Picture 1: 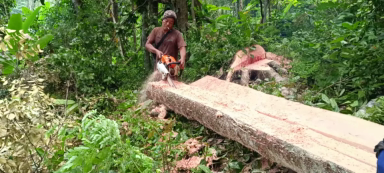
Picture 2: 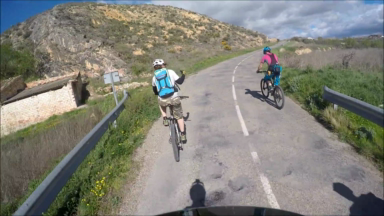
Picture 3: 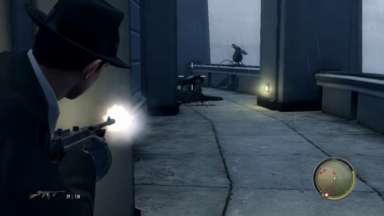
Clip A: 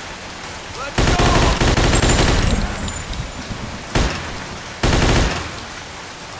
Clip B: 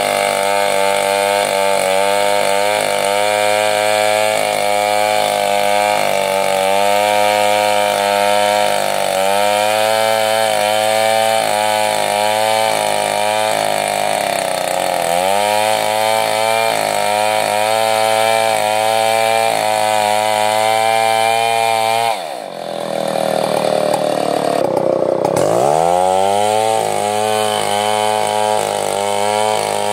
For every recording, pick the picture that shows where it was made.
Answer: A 3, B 1